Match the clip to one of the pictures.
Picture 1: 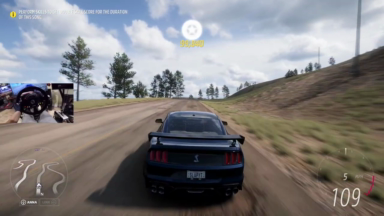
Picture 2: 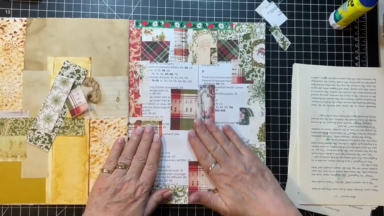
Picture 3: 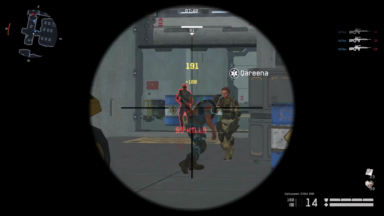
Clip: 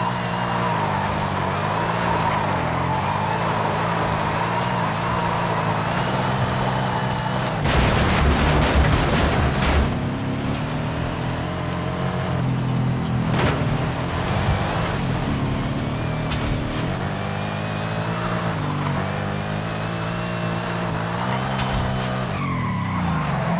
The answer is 1